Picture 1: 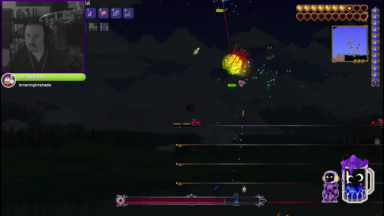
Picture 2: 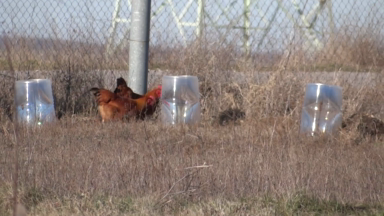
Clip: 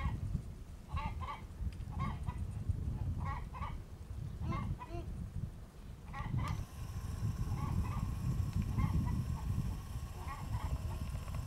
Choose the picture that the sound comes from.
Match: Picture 2